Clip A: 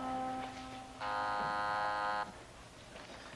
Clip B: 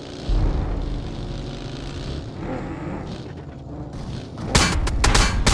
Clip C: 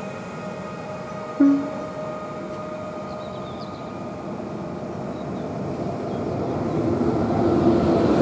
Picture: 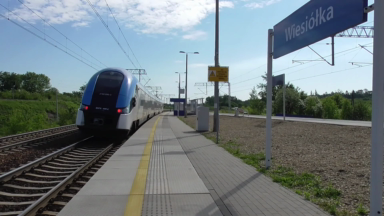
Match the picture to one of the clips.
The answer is C